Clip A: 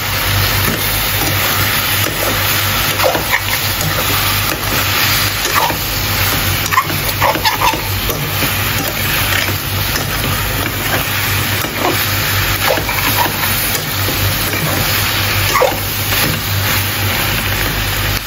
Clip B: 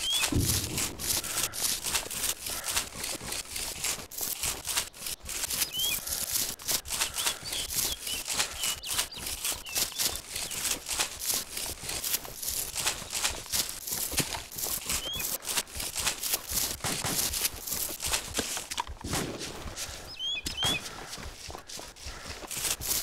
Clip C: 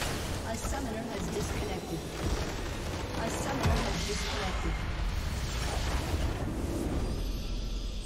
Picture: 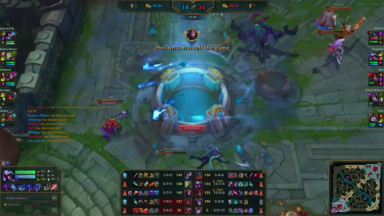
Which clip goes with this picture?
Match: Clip C